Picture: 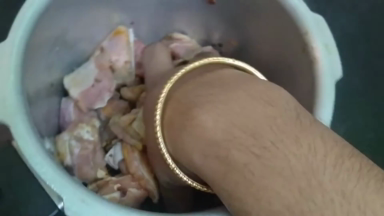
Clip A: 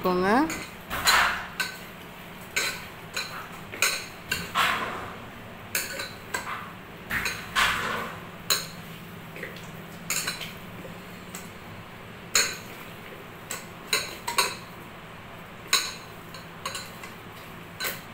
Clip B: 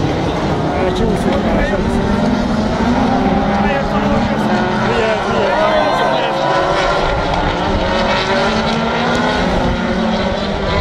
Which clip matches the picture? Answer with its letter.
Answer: A